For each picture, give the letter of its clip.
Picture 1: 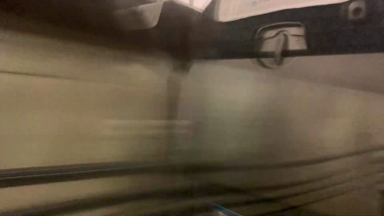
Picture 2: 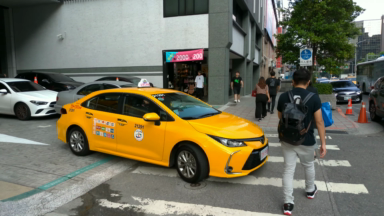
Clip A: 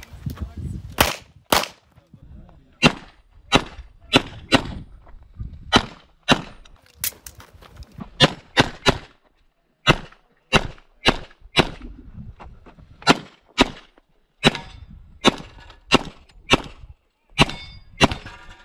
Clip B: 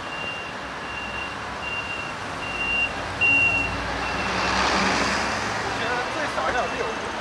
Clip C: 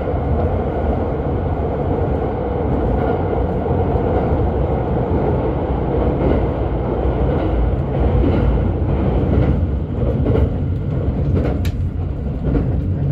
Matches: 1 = C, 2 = B